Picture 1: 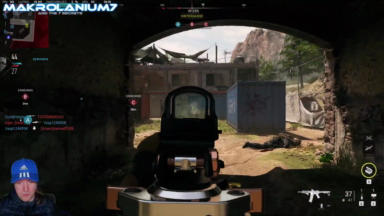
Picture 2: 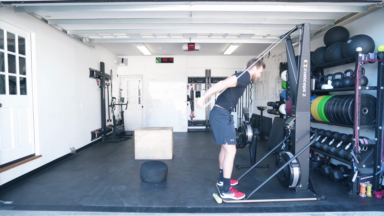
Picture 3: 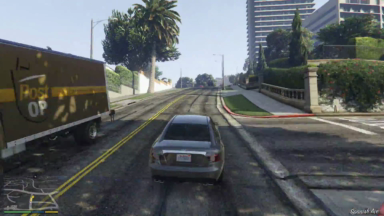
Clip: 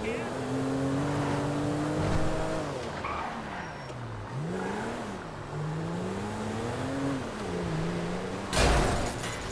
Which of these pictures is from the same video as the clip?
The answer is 3